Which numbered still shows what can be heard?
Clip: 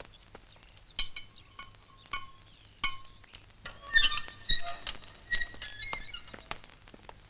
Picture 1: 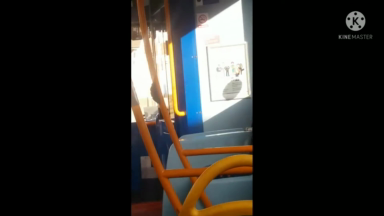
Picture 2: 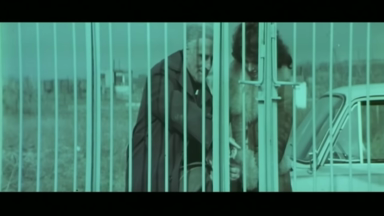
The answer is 2